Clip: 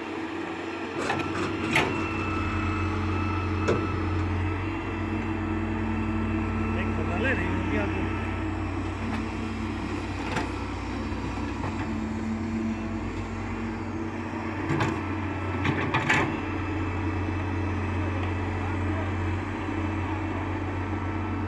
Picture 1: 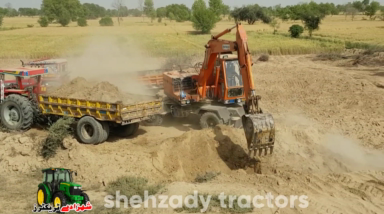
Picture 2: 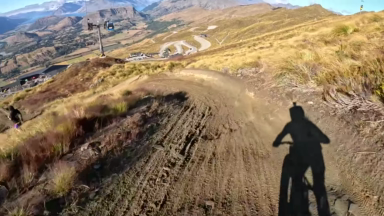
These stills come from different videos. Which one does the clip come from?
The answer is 1